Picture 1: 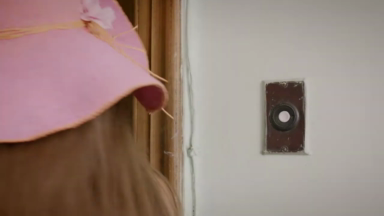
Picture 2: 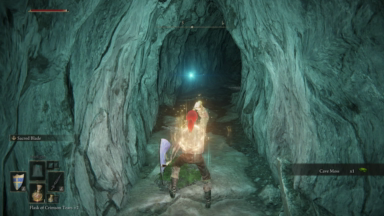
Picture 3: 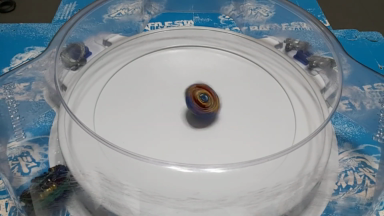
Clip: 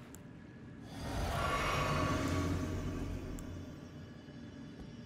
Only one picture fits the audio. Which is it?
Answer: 2